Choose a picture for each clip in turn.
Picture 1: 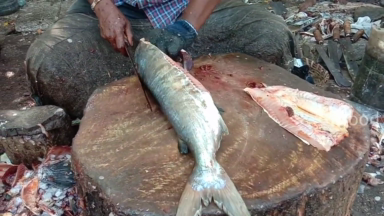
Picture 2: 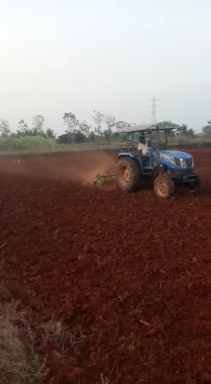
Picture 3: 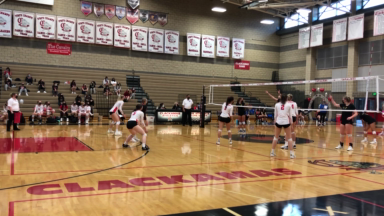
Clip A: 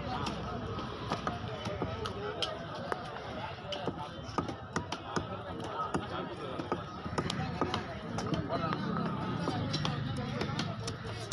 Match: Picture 1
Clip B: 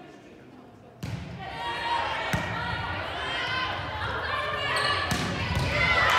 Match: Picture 3